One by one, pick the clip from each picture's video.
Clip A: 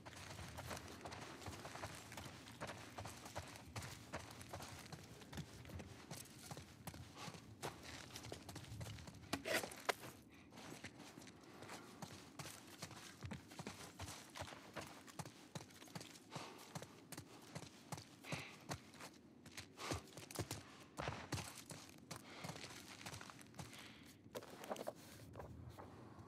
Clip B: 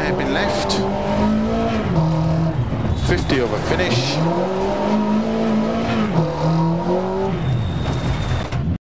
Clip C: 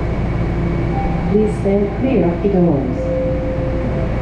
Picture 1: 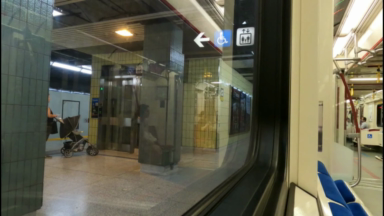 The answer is C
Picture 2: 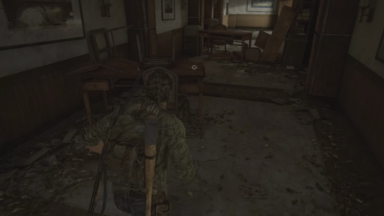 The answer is A